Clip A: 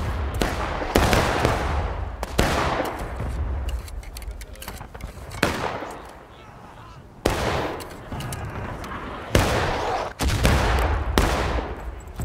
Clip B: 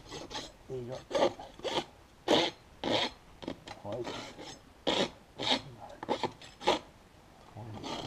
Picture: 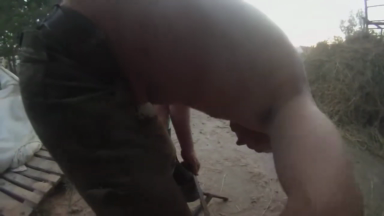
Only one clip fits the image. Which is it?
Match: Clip B